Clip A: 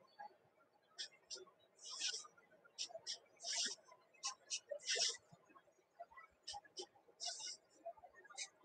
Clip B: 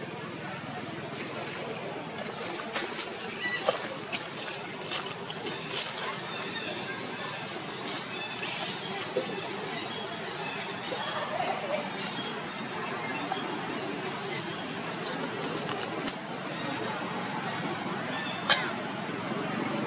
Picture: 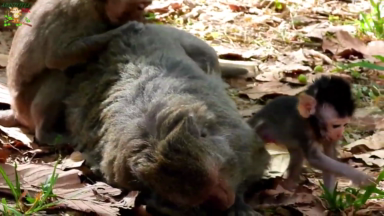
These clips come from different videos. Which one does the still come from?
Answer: B